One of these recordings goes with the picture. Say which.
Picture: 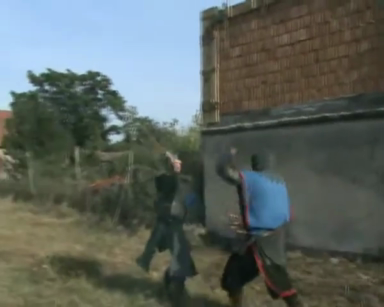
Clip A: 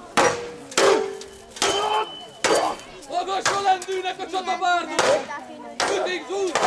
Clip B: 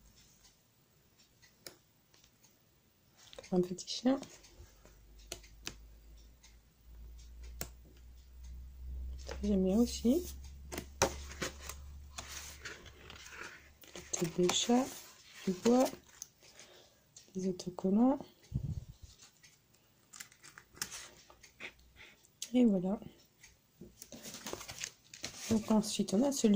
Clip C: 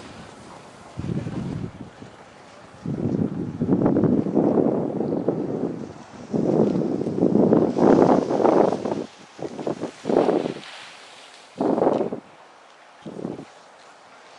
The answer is A